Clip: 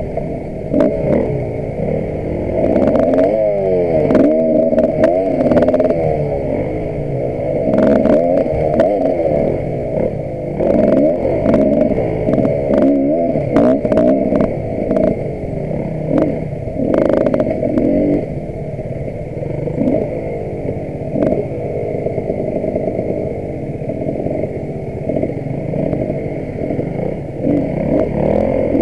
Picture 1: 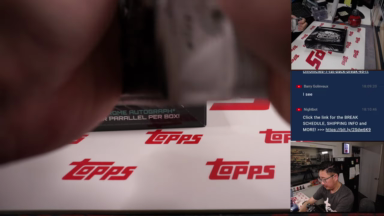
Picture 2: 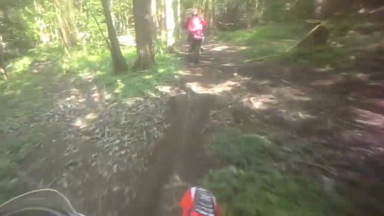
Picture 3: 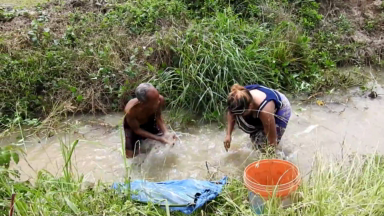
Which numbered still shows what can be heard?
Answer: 2